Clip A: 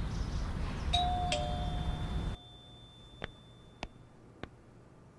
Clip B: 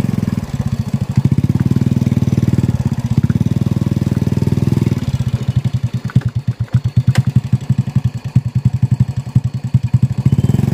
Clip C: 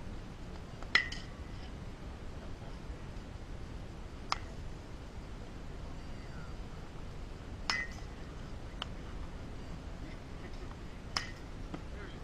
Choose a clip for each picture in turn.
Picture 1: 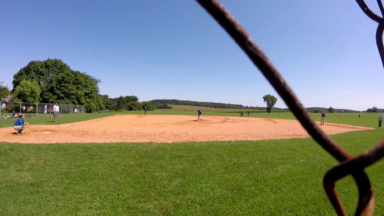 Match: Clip C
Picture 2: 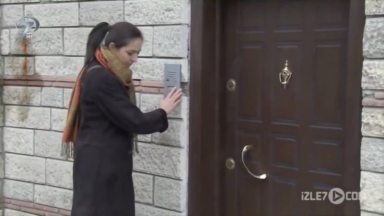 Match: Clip A